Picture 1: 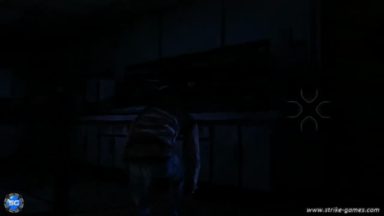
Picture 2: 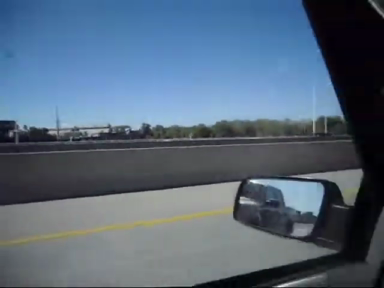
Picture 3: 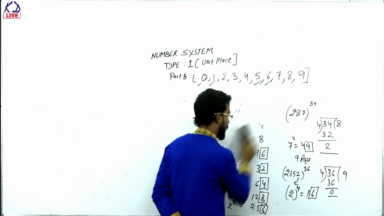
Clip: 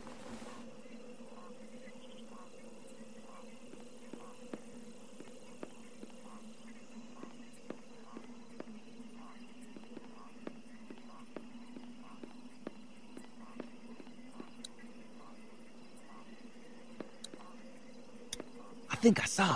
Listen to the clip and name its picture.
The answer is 1